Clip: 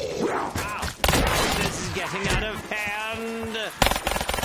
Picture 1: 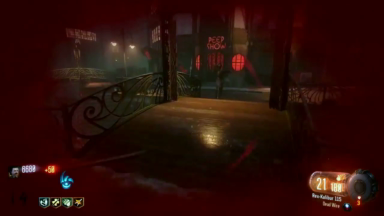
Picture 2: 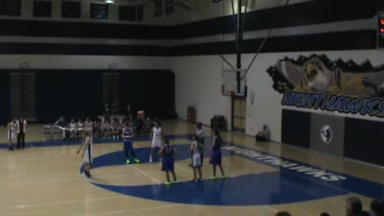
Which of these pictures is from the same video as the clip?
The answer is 1